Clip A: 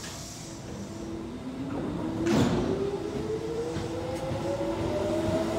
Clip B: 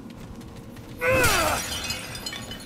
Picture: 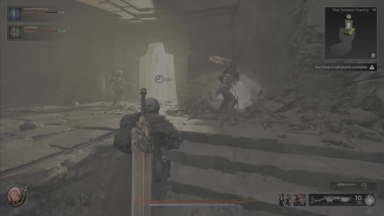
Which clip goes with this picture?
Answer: B